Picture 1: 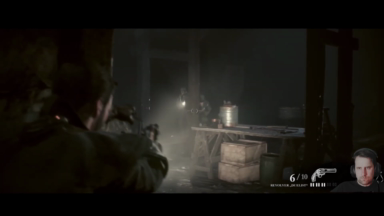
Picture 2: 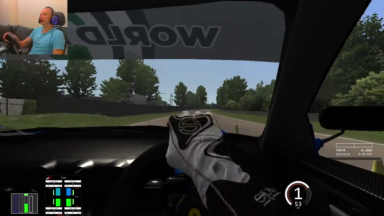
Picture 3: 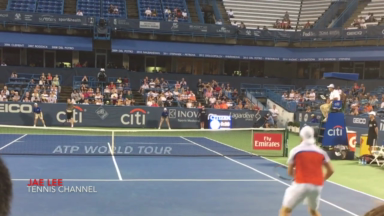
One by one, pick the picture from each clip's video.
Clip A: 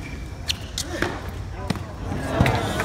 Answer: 3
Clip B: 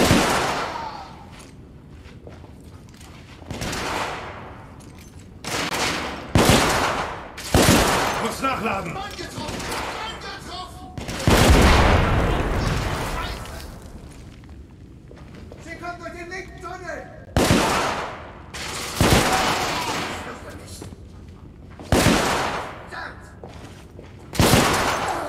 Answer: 1